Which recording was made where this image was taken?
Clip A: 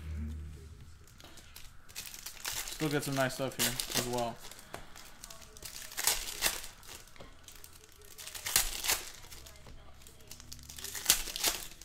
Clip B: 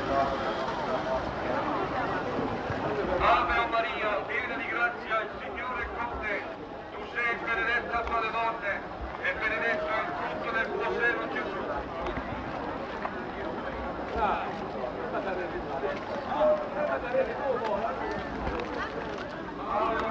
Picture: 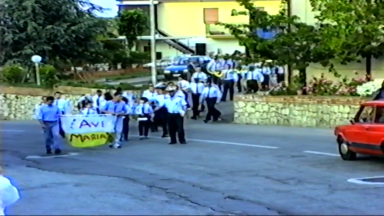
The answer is B